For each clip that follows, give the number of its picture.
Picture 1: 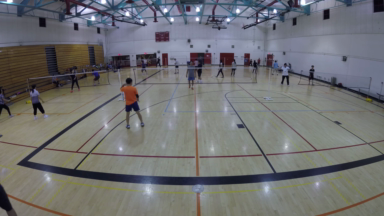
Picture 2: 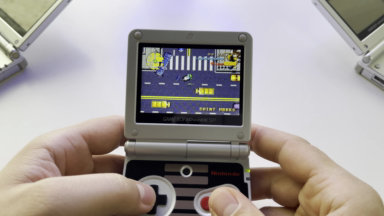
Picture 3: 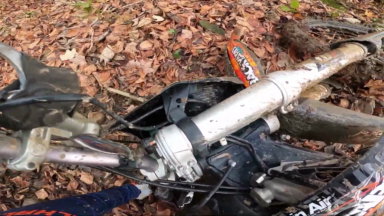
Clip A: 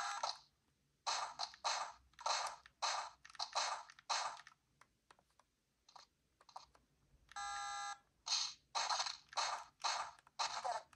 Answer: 2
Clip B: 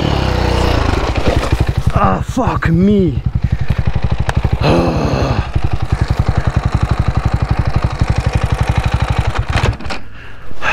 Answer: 3